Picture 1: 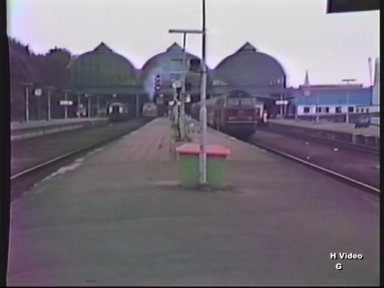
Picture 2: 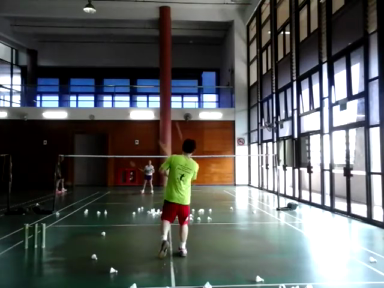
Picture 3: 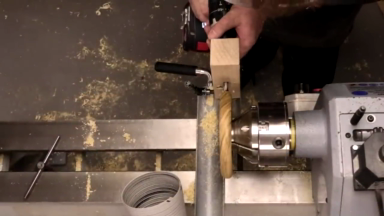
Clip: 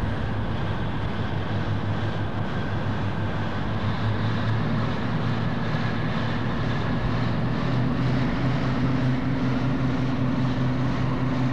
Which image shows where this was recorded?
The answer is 1